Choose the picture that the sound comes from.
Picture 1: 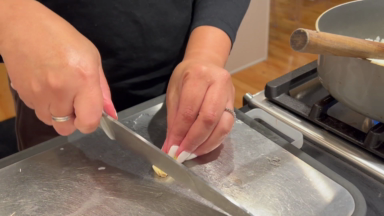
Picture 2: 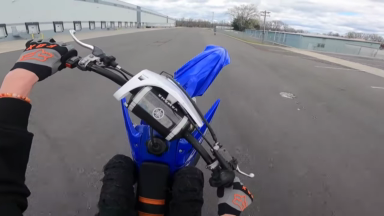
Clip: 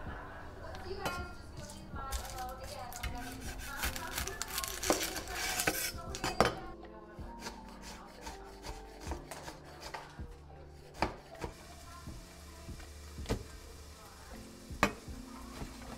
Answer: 1